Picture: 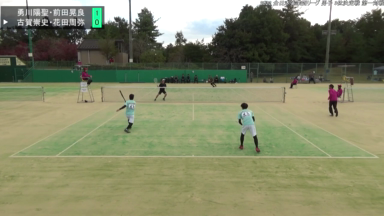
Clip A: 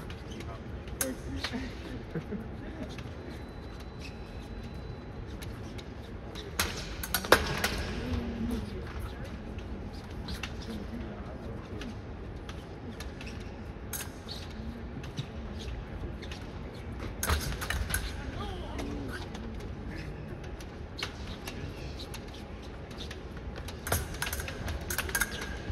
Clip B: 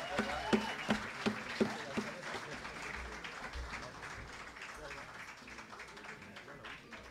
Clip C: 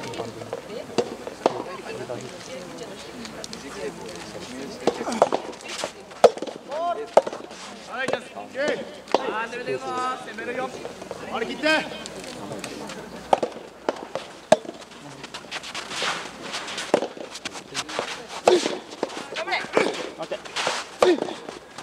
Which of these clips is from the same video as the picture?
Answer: C